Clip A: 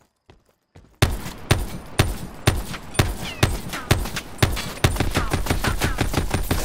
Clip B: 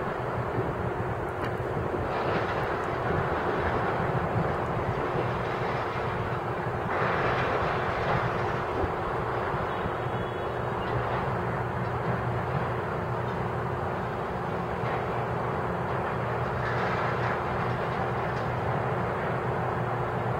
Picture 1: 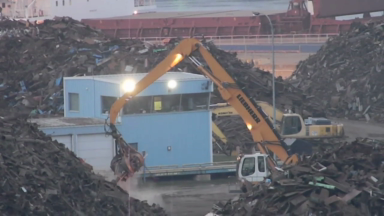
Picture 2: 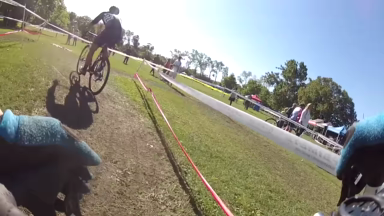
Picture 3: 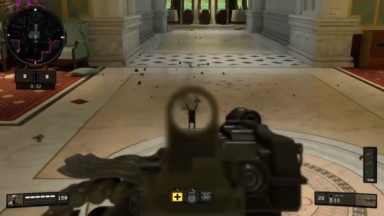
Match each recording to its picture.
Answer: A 3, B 1